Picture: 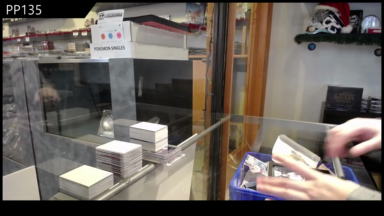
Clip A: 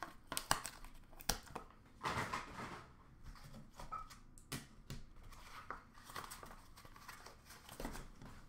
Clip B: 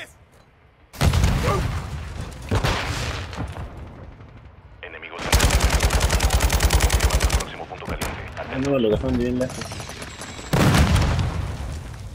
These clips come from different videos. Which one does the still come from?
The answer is A